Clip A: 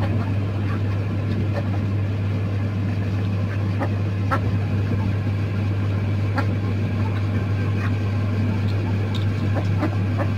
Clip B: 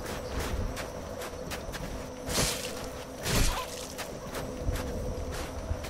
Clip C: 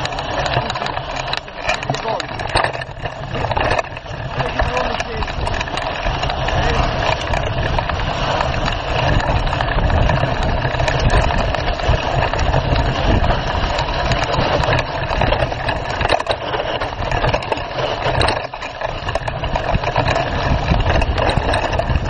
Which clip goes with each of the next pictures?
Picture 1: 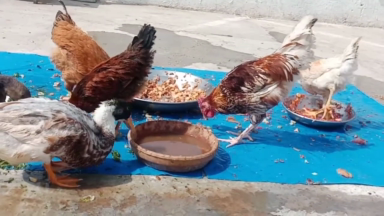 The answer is A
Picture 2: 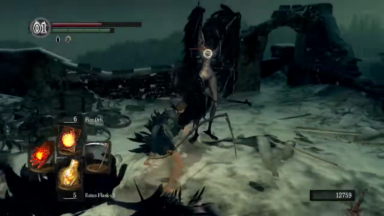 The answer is B